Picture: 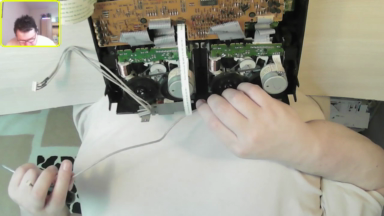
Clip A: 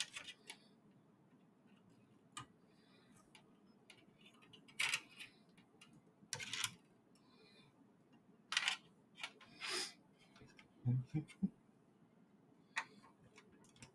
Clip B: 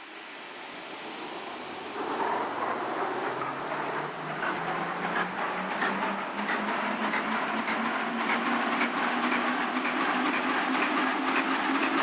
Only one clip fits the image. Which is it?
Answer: A